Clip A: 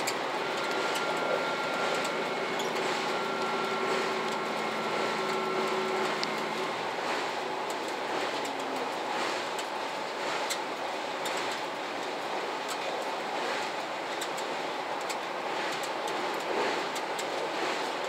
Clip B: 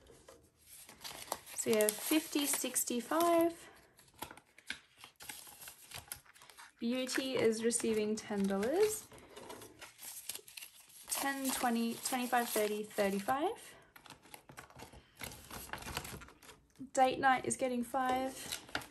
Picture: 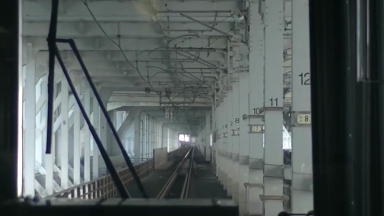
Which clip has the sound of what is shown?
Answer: A